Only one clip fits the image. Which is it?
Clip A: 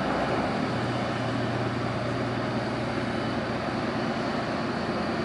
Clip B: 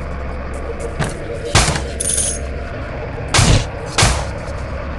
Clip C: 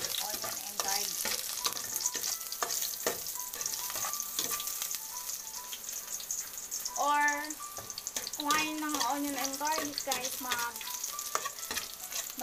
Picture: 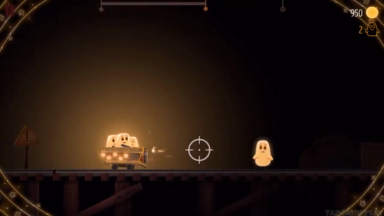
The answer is B